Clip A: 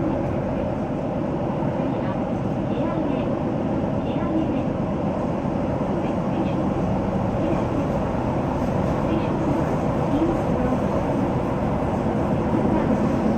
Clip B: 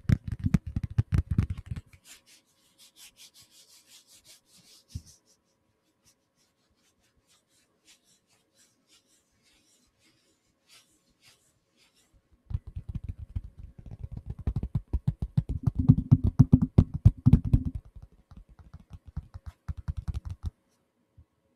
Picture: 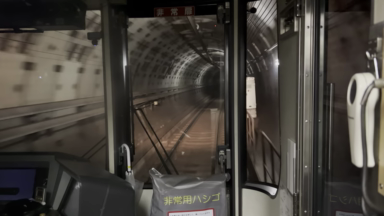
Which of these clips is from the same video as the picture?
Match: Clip A